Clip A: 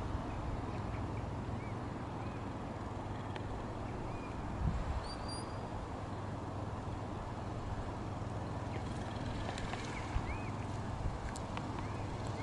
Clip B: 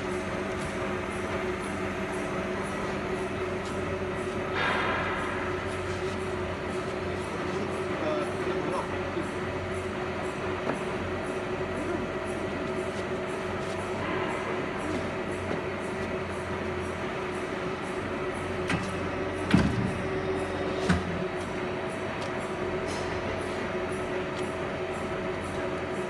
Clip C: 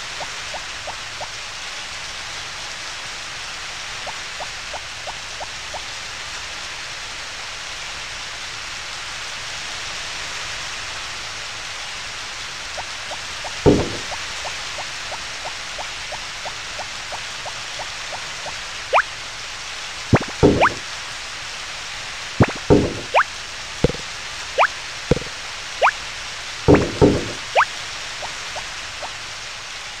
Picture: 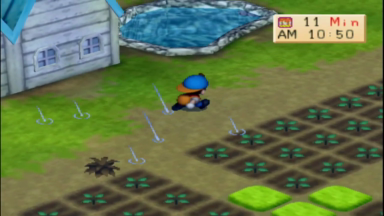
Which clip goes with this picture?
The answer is C